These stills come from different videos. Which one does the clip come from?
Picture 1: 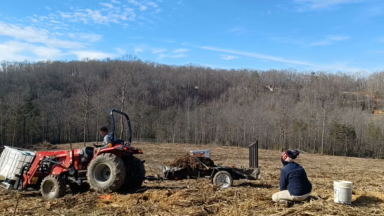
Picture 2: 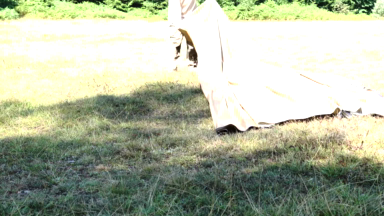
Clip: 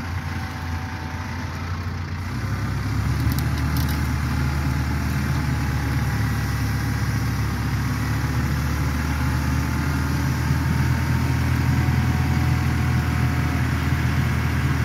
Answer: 1